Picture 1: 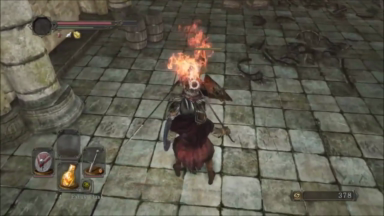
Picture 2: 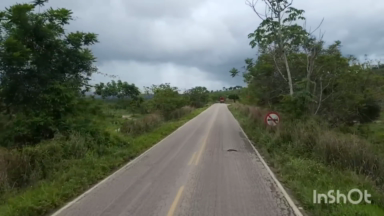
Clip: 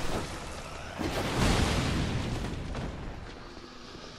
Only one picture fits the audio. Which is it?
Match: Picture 1